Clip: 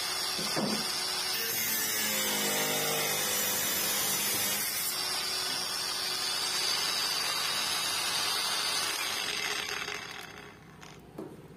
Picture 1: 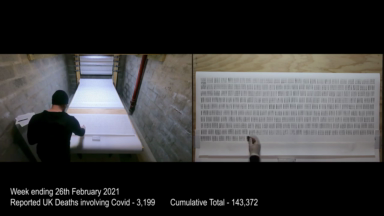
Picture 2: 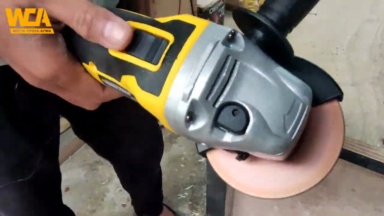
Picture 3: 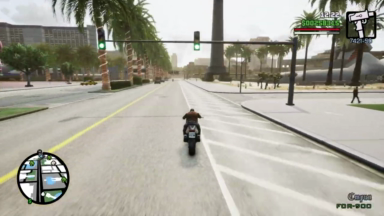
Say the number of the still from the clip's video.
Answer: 2